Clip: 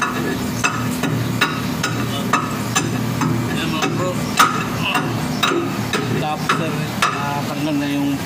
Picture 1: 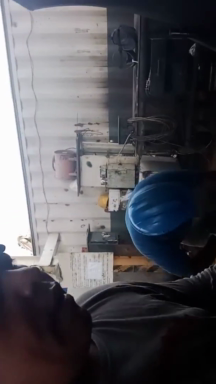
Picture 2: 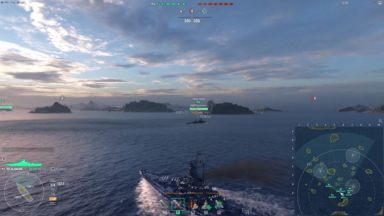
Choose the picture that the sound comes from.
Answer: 1